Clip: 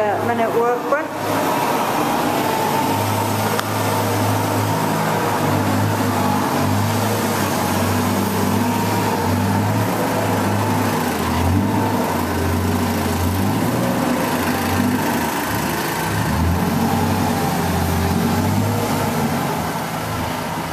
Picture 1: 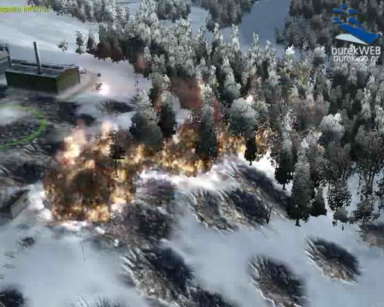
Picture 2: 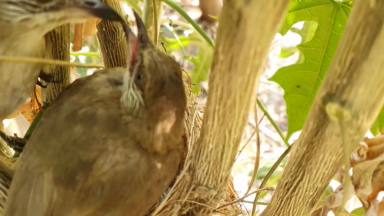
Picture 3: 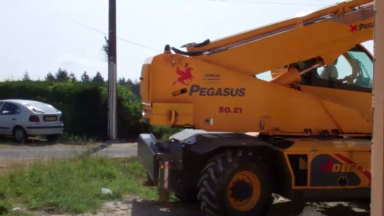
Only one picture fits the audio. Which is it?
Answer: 3